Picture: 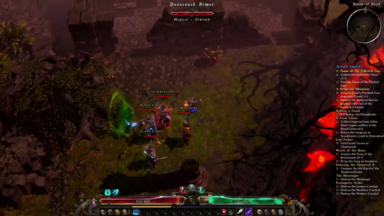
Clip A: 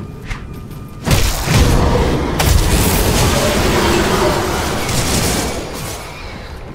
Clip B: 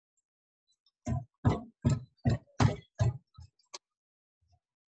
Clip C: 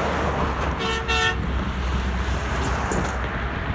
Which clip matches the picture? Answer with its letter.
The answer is A